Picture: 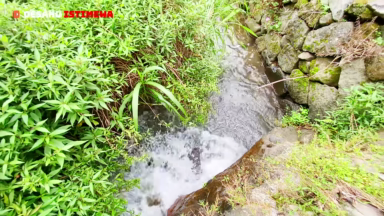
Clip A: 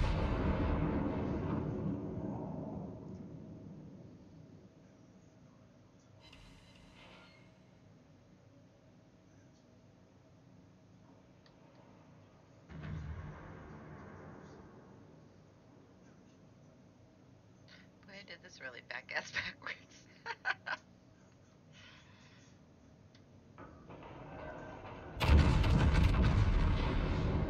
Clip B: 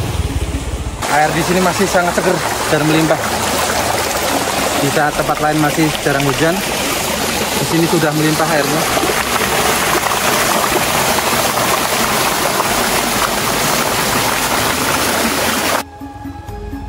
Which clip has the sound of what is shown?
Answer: B